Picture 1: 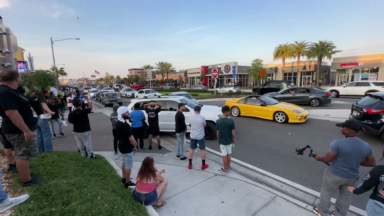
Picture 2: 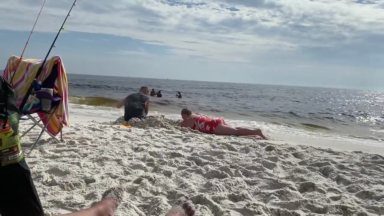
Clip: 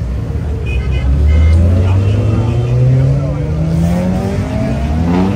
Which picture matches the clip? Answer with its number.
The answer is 1